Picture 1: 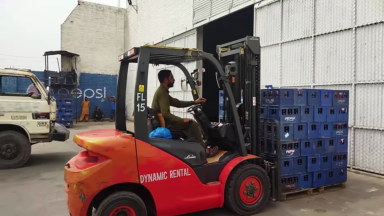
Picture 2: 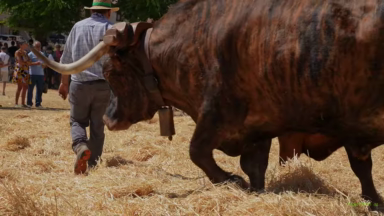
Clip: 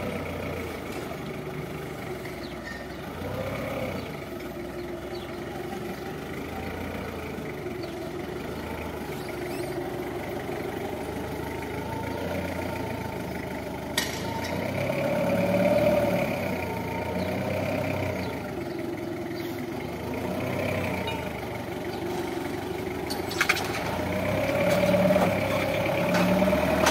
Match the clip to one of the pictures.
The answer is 1